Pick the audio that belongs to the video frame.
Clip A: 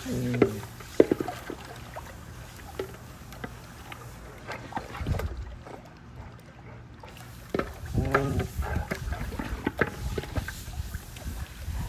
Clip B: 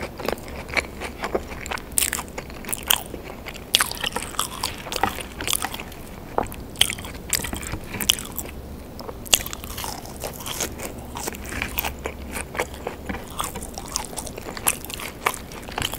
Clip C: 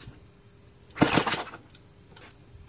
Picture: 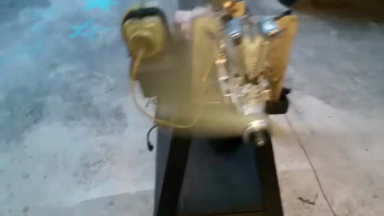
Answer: C